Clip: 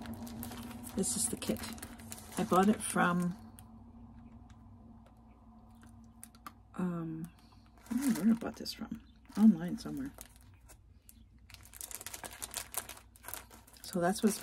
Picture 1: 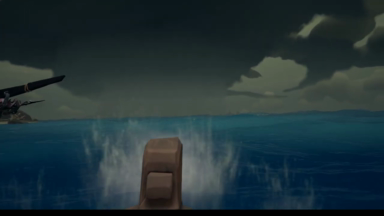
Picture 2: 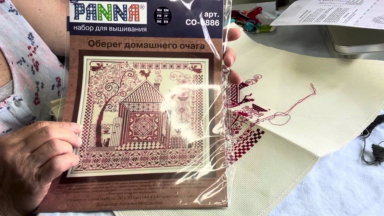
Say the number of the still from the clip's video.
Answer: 2